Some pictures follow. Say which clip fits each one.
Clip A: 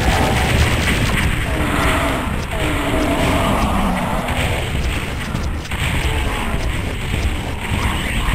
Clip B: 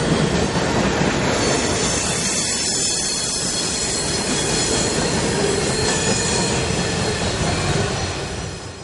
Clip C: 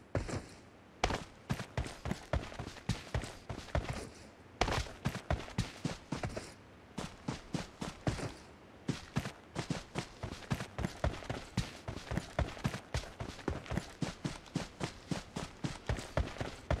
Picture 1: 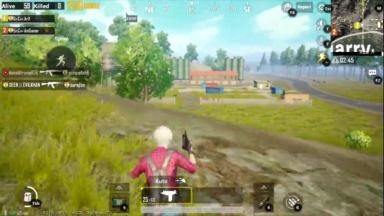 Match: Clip C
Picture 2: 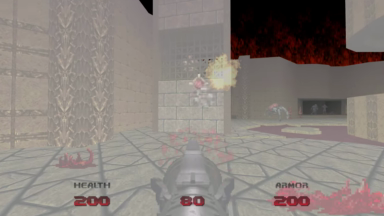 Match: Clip A